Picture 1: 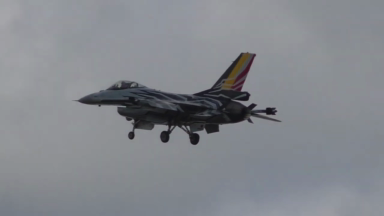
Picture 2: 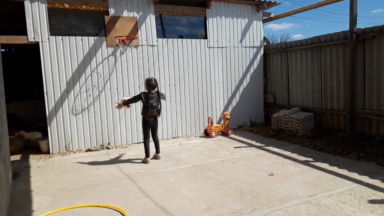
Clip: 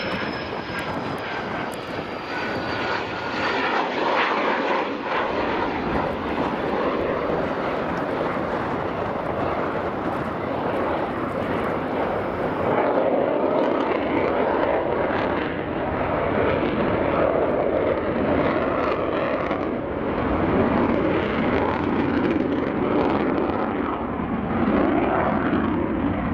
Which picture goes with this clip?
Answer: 1